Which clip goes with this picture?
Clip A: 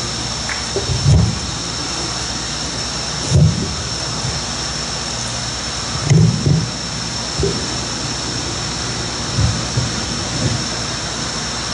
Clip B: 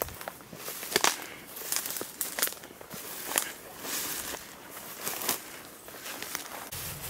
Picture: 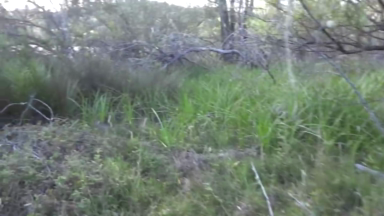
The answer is B